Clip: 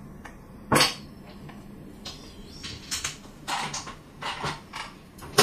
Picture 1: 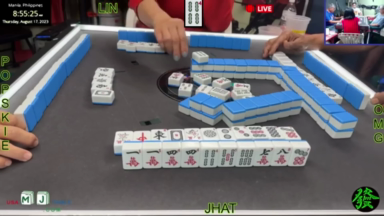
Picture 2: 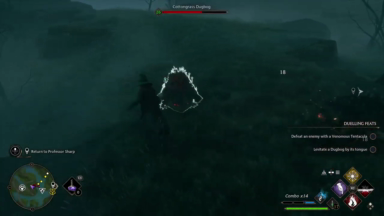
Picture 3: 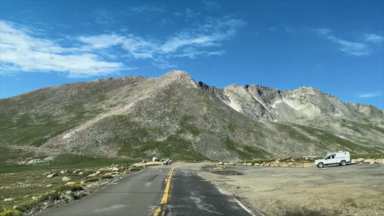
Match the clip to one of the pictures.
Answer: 1